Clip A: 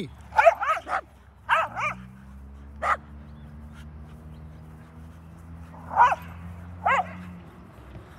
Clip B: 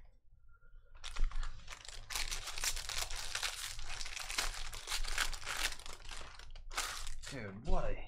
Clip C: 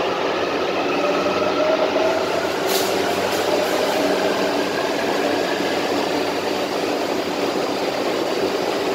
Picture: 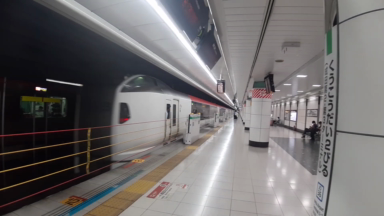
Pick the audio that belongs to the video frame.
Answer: C